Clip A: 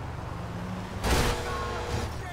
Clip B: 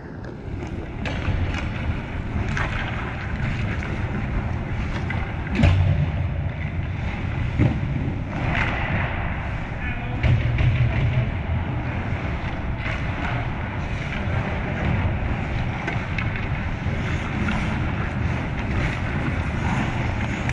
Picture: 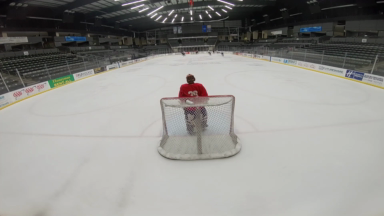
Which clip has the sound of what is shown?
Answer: B